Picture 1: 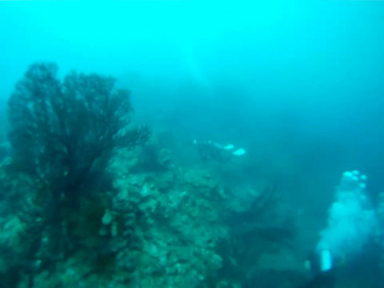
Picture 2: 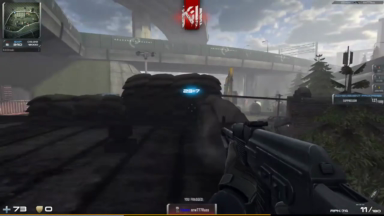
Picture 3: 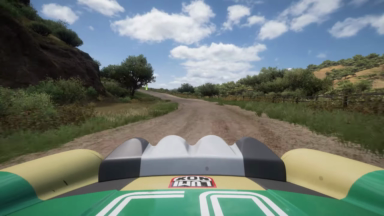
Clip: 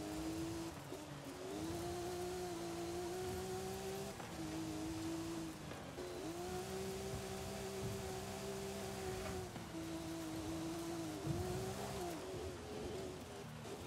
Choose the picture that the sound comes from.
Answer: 3